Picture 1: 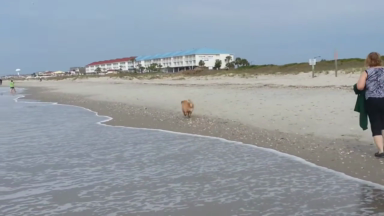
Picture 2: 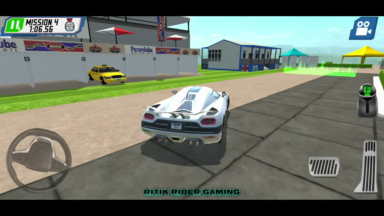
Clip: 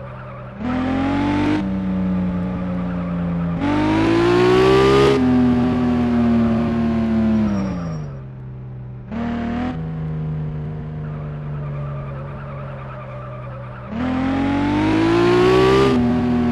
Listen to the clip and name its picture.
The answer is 2